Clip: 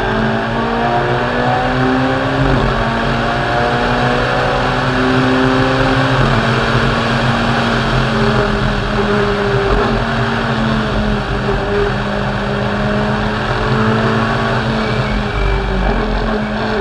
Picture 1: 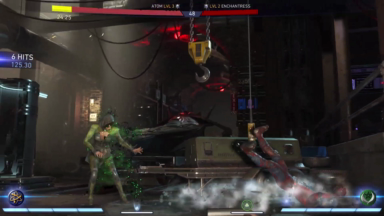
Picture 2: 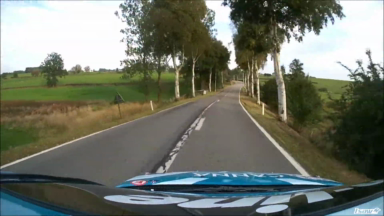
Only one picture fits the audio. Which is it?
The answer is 2